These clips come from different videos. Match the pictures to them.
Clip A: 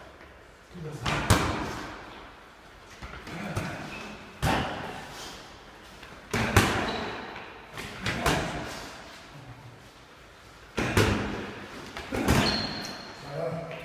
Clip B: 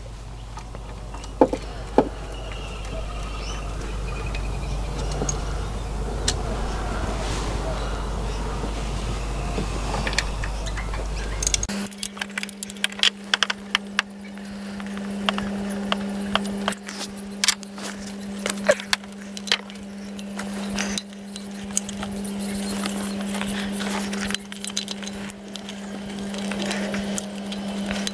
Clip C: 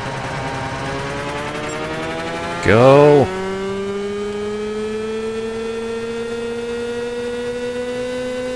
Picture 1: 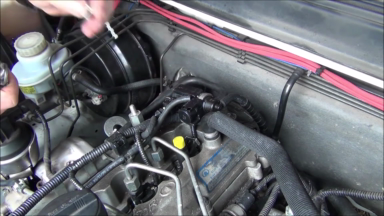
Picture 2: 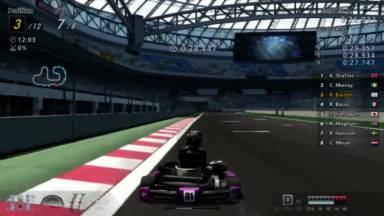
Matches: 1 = B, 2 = C